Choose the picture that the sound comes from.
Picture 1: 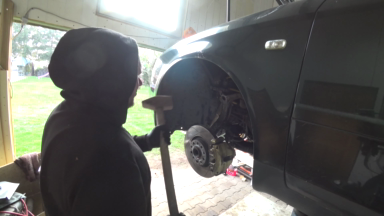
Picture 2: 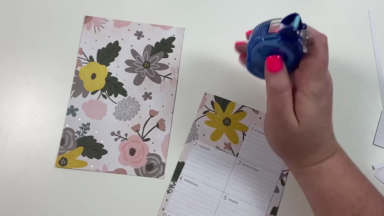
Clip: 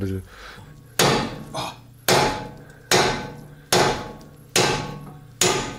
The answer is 1